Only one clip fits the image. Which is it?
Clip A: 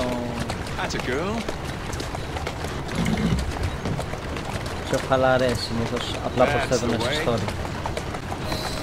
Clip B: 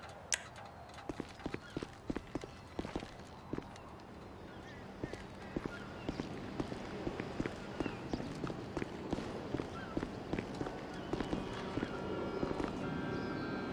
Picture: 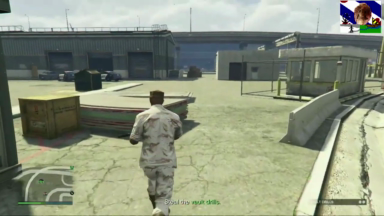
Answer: B